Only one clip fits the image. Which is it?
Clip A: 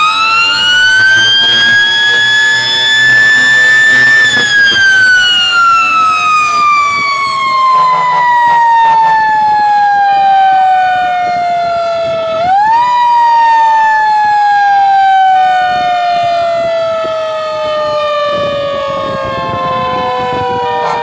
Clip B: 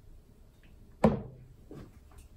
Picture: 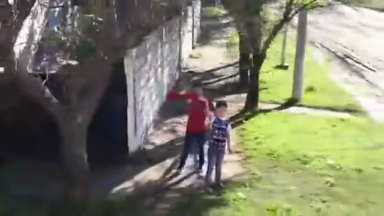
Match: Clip A